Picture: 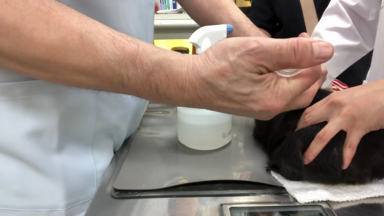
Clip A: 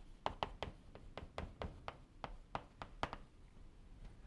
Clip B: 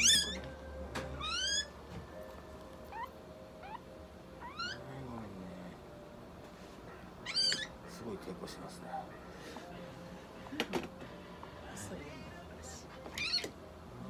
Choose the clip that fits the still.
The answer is B